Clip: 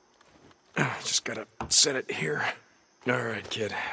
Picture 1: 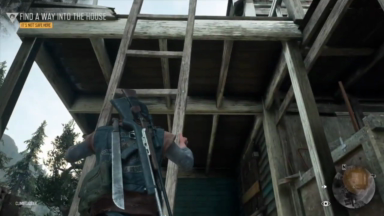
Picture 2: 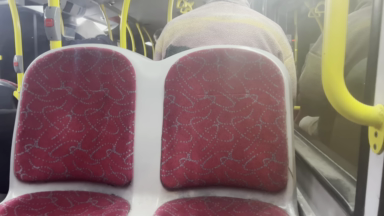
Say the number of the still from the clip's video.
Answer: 1